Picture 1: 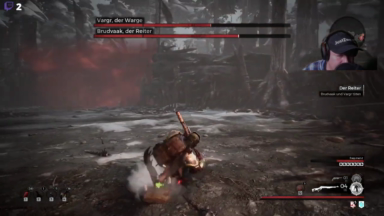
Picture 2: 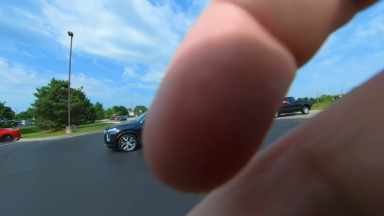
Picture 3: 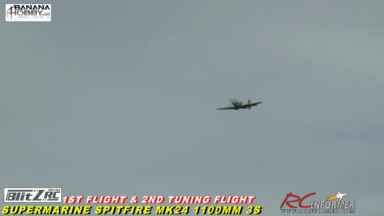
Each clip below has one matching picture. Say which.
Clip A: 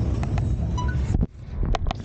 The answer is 2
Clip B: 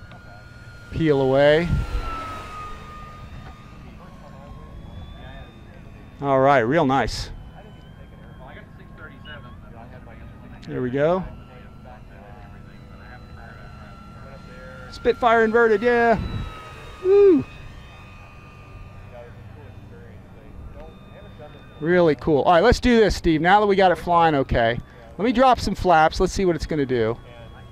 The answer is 3